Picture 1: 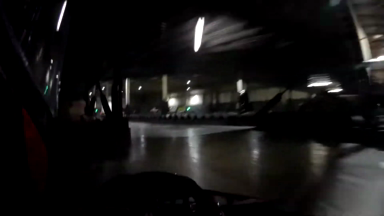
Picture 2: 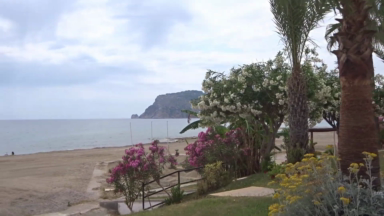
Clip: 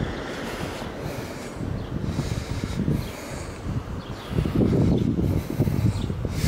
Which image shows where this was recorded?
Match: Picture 2